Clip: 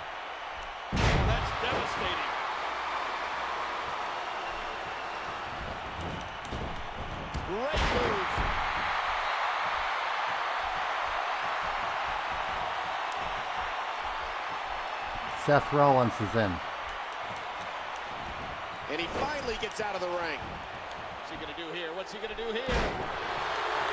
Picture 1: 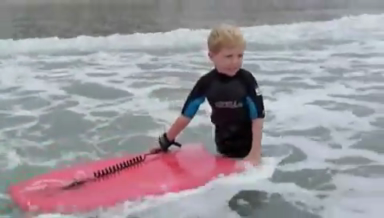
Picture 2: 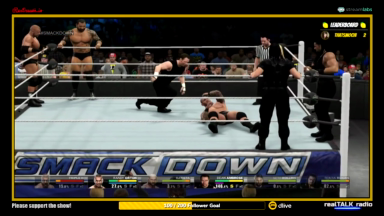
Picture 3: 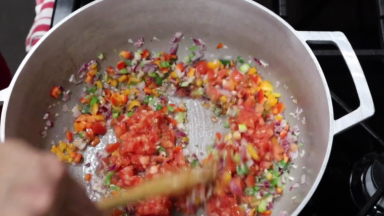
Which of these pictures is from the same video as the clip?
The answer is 2